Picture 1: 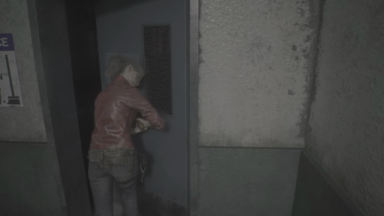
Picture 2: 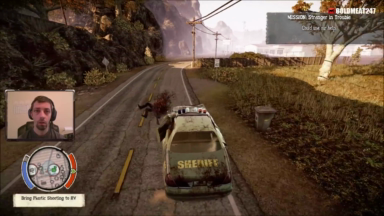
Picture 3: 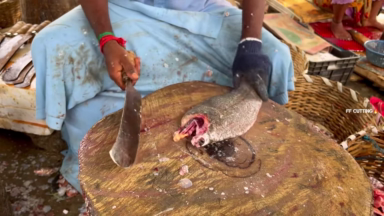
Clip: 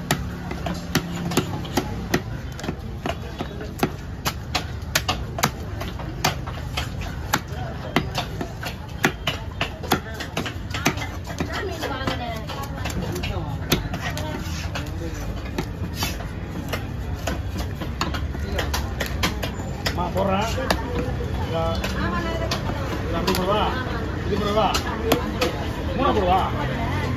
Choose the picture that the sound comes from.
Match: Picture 3